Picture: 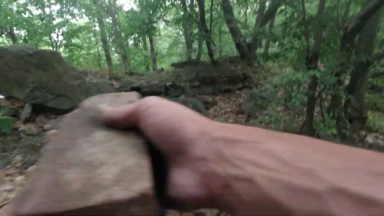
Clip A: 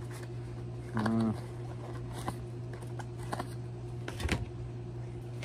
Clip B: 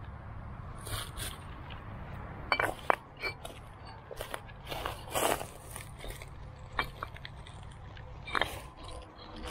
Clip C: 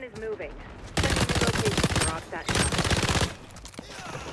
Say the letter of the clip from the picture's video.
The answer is B